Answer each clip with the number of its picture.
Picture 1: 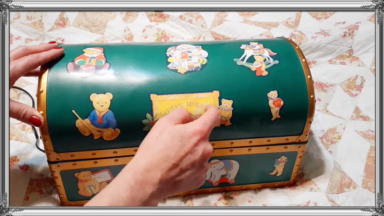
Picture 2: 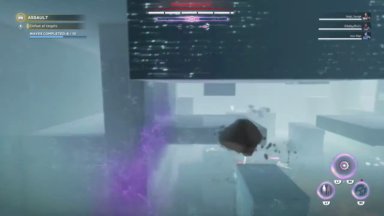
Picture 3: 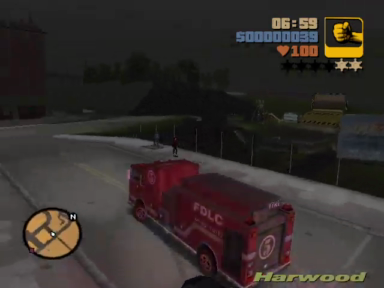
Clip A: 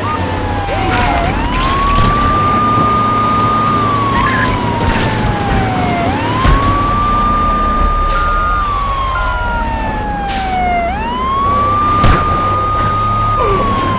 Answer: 3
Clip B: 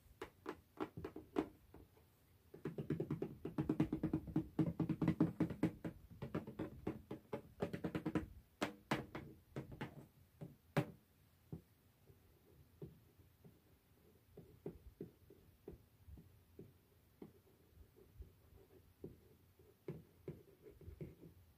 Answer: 1